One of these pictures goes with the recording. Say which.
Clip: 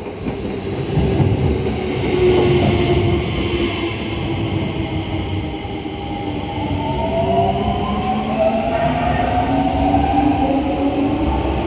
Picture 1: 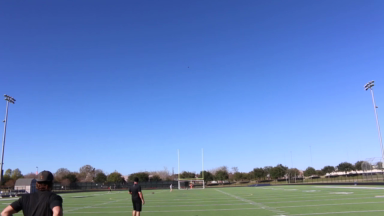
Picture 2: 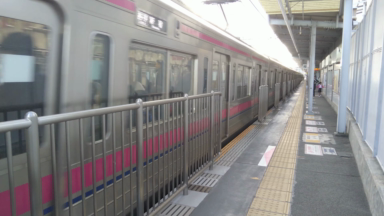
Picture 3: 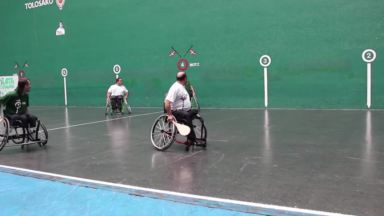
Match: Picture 2